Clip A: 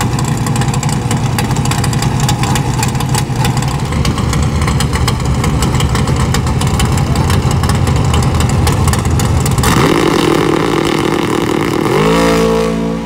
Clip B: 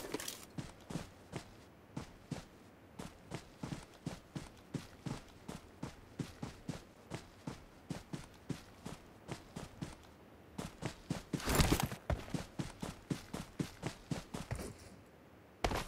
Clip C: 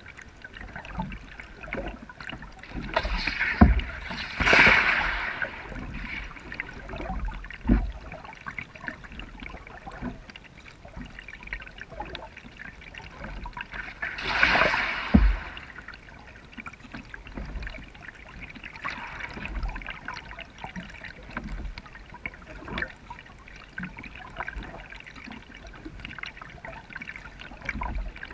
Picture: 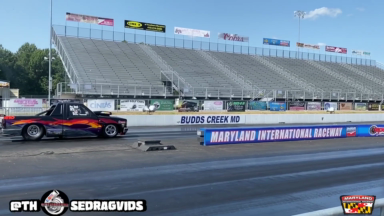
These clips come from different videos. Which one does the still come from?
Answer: A